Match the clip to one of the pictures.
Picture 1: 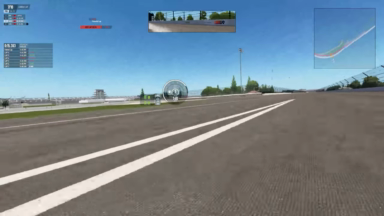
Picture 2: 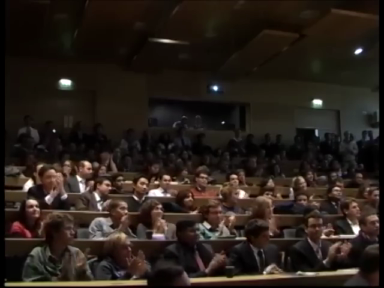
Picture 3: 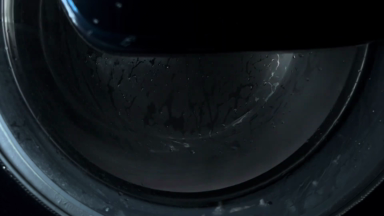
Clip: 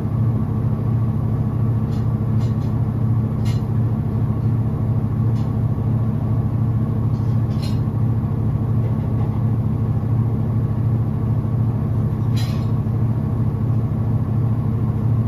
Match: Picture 3